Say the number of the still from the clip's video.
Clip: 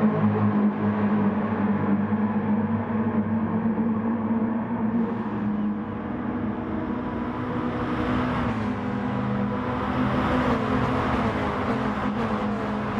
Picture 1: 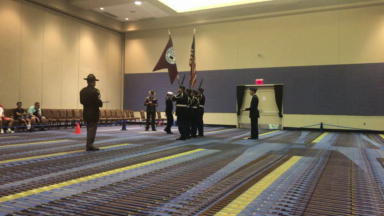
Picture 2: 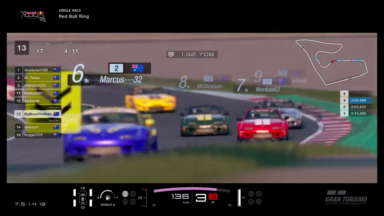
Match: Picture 2